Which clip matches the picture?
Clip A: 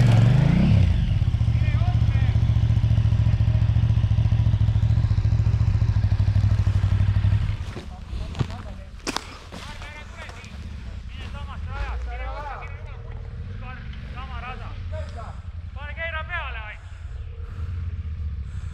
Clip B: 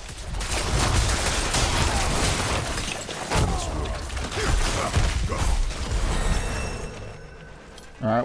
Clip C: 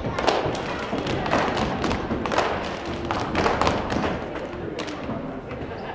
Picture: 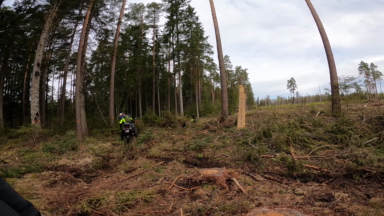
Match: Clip A